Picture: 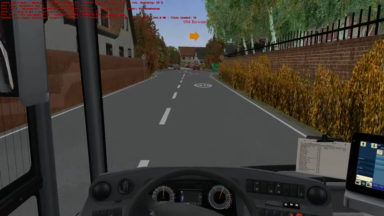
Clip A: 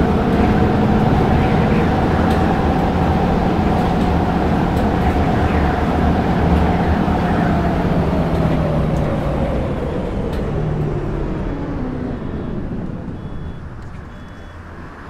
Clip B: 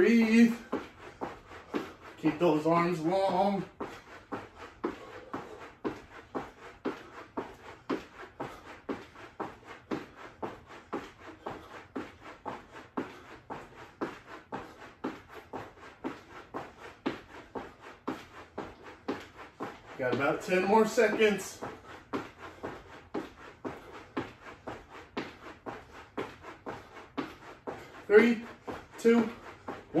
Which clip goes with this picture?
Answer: A